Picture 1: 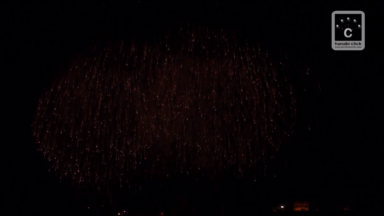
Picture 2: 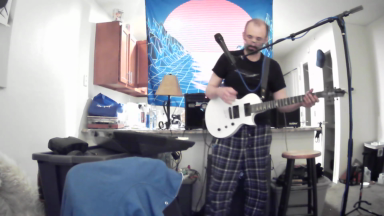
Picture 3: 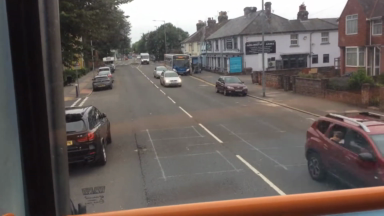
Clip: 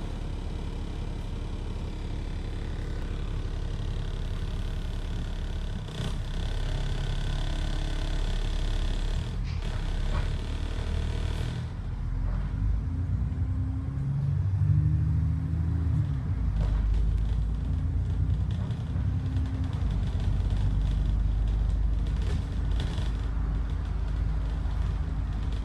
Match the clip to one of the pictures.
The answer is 3